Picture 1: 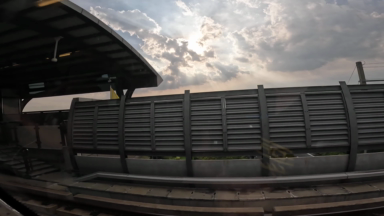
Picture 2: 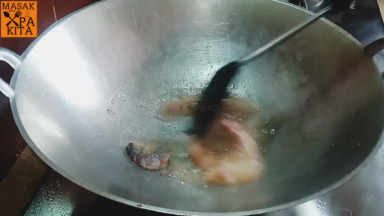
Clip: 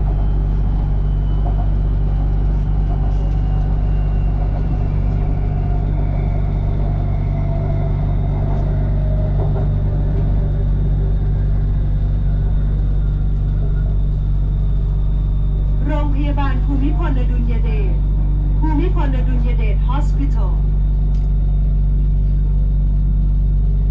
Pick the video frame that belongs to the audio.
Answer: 1